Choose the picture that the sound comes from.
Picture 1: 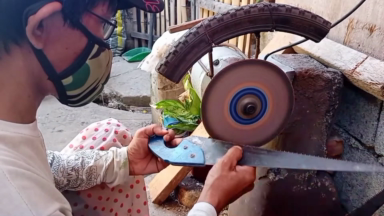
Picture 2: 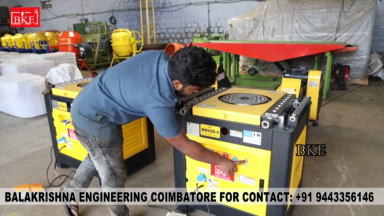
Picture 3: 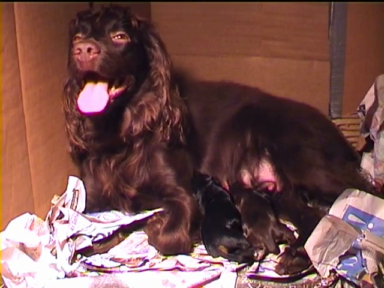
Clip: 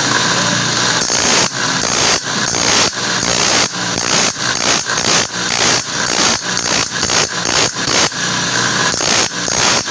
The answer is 1